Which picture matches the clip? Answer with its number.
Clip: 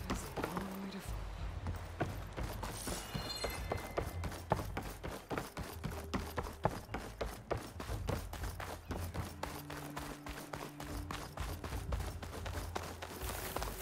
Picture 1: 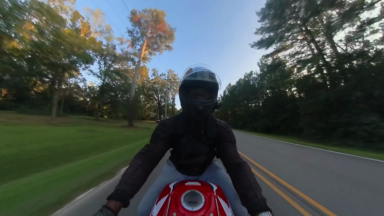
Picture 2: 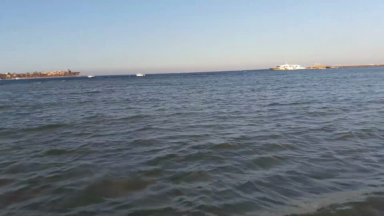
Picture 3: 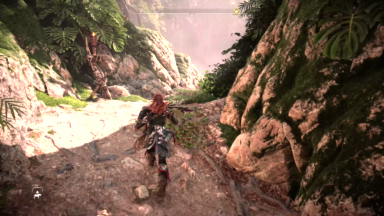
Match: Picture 3